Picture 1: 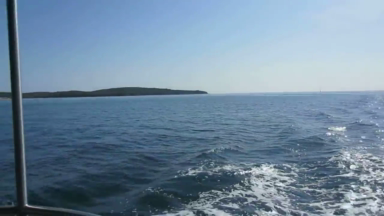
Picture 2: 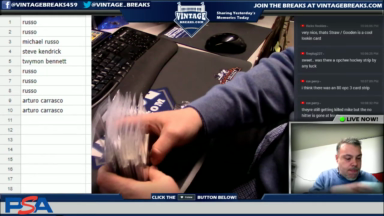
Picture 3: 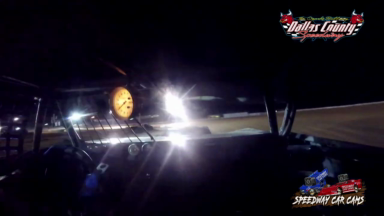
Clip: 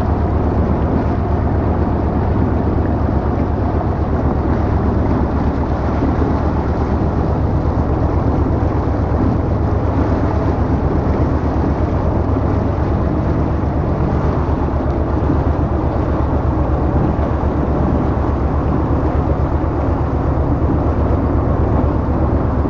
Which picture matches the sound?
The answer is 1